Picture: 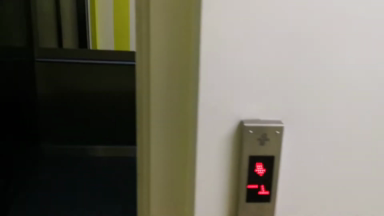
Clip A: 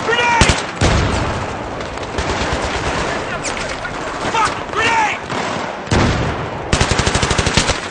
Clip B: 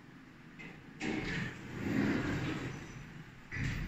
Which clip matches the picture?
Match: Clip B